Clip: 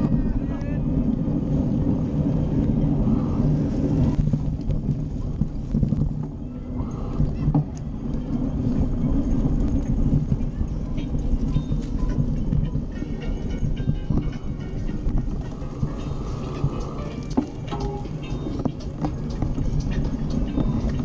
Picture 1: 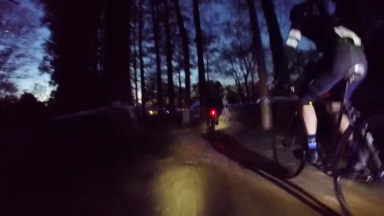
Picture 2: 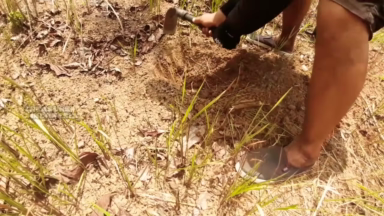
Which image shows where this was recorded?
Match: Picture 1